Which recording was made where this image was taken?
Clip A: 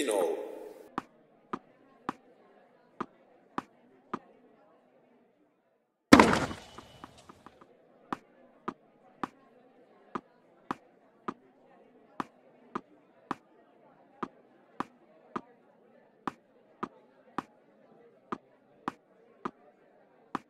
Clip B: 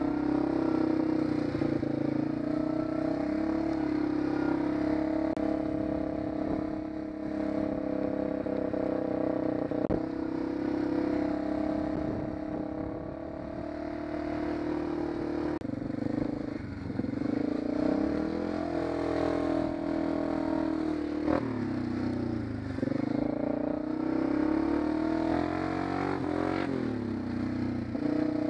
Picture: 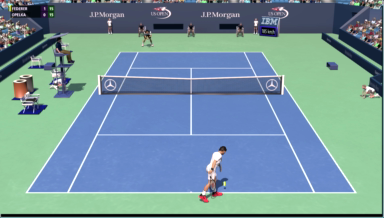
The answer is A